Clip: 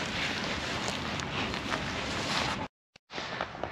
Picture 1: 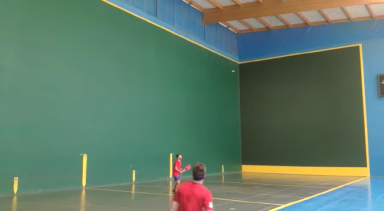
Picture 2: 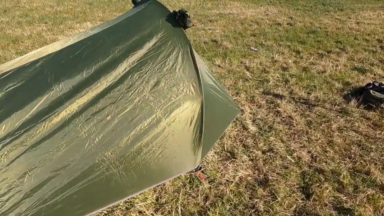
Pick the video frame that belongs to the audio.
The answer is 2